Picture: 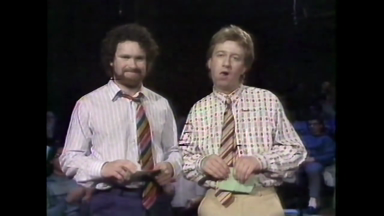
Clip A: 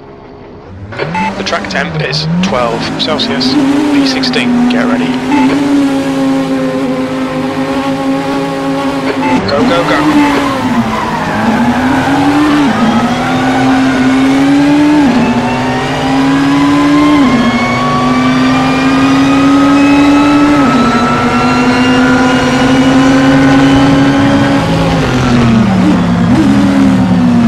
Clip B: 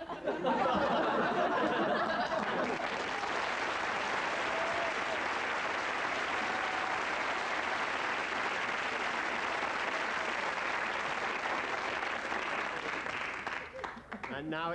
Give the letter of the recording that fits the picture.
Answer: B